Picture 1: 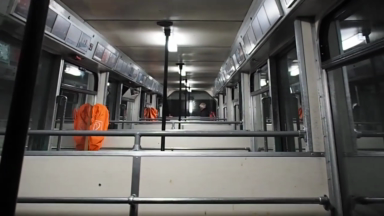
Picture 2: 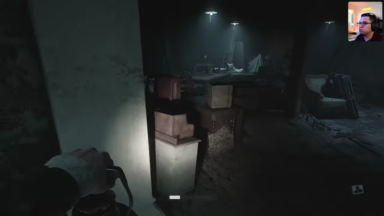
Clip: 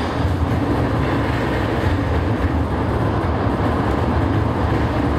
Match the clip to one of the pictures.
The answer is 1